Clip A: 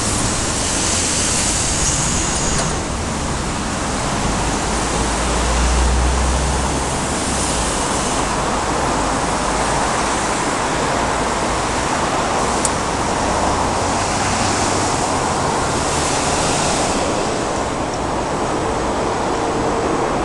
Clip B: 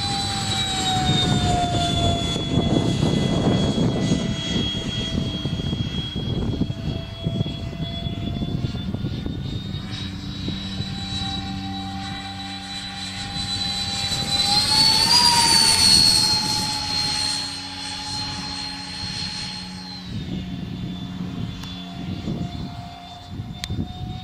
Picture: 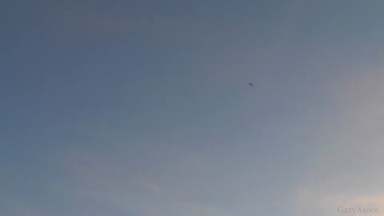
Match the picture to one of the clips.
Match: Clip B